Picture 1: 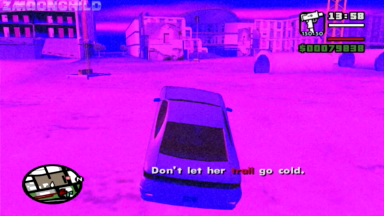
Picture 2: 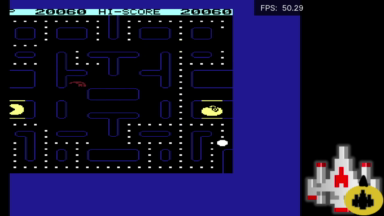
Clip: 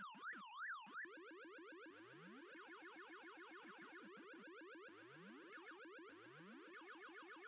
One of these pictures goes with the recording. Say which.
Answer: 2